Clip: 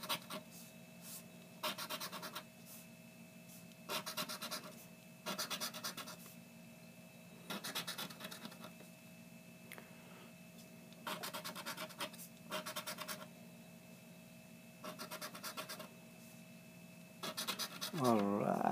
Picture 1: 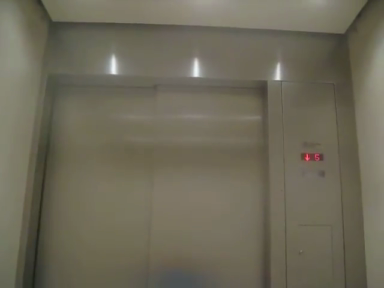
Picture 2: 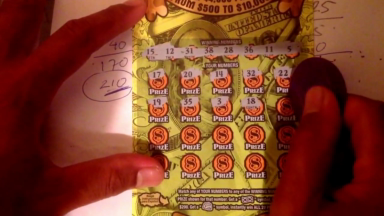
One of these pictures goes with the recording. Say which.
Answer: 2